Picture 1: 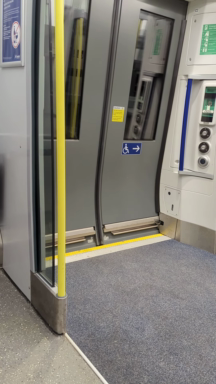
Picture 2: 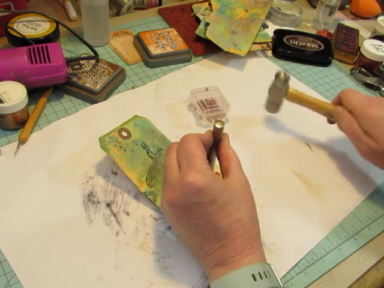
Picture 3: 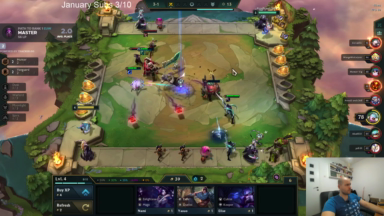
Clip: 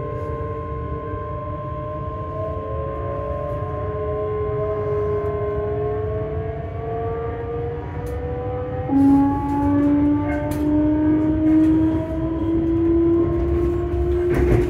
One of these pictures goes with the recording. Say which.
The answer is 1